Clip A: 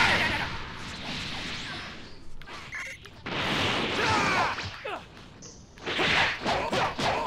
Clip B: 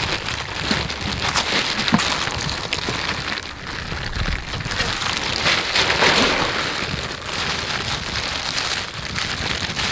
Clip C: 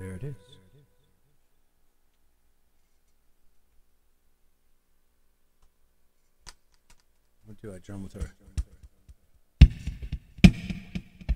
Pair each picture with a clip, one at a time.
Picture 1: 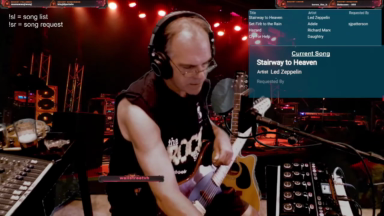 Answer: C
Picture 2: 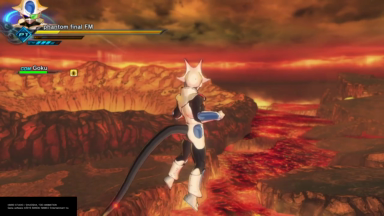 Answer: A